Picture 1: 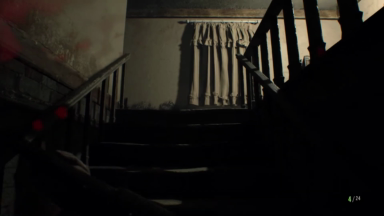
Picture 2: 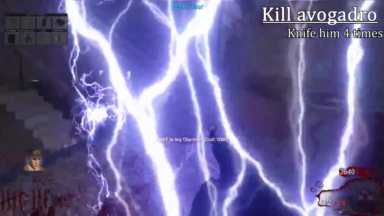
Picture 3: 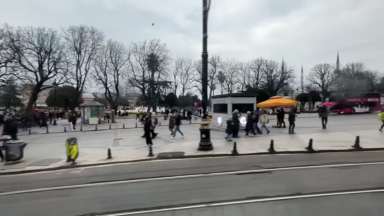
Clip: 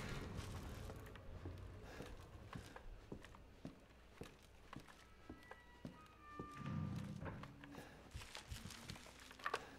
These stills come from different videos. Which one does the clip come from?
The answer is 1